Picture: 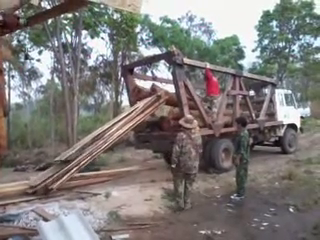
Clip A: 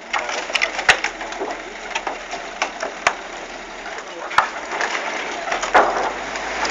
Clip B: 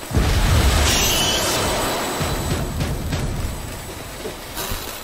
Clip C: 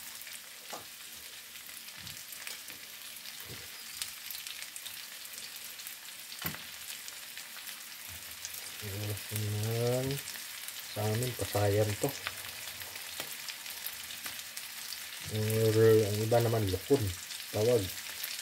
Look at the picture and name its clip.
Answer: A